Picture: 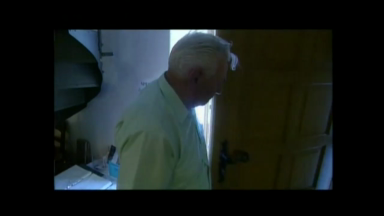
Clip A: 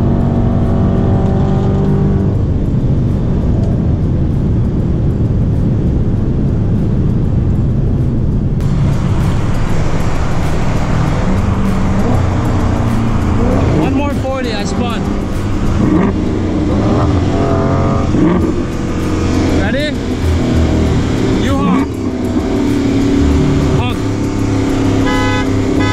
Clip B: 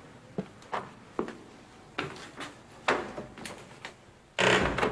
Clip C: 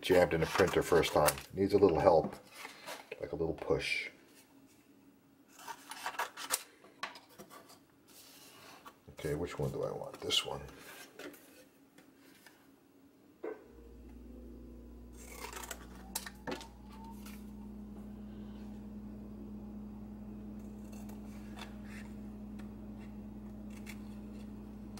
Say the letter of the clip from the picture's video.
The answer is B